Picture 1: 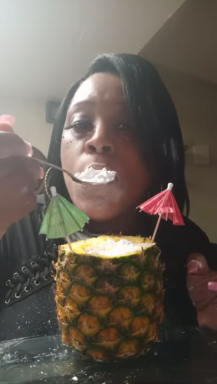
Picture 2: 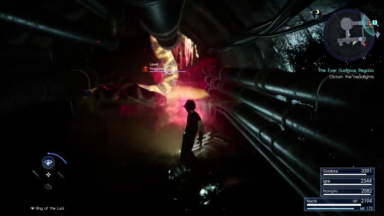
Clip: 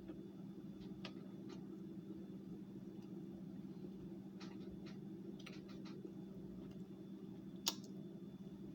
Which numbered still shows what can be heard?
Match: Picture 1